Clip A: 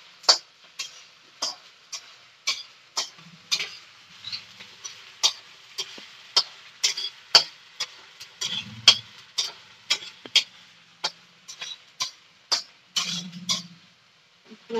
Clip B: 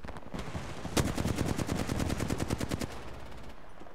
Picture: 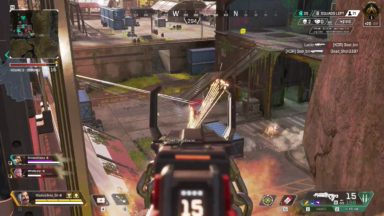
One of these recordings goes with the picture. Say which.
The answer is B